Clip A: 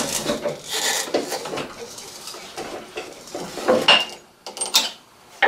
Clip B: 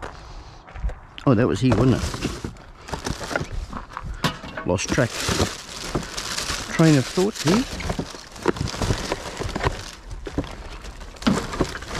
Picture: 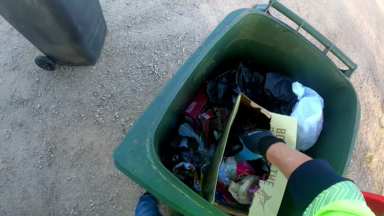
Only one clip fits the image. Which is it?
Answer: B